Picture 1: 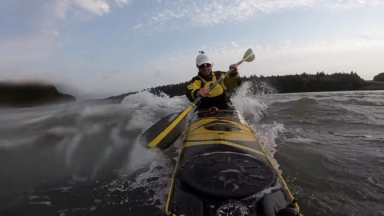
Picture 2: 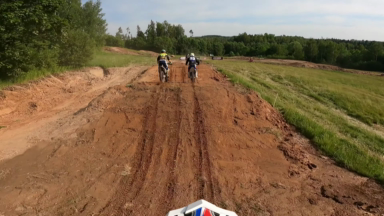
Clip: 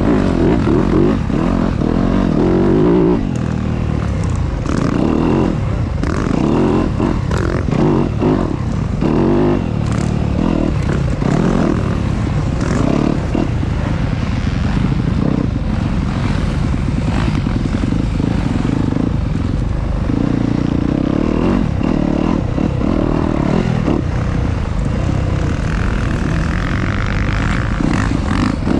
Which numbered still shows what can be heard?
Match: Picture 2